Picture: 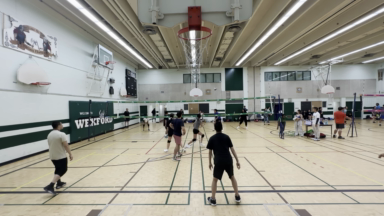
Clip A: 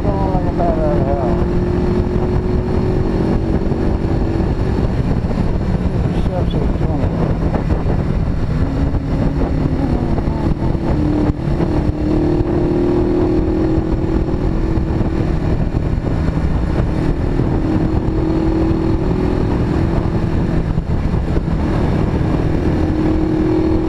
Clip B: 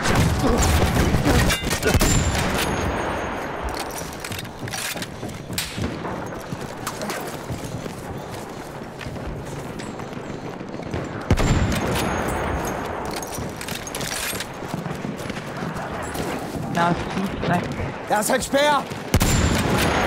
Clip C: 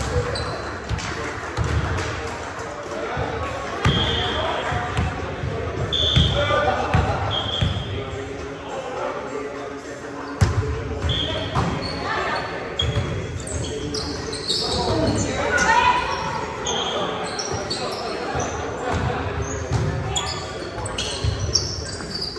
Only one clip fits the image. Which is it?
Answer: C